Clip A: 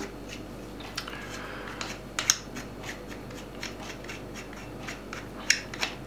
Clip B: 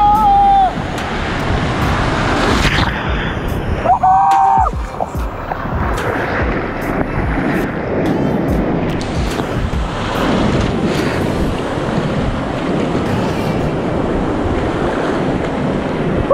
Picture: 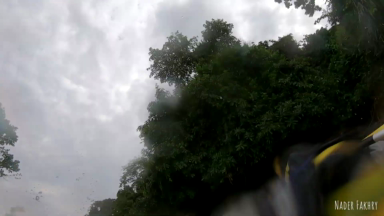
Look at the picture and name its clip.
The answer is B